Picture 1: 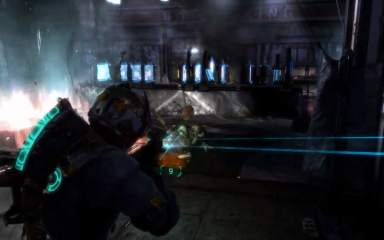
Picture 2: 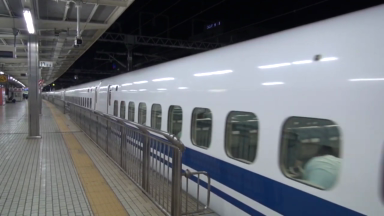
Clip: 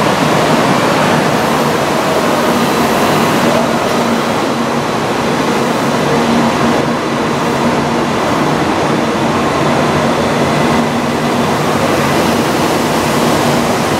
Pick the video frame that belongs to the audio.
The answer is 2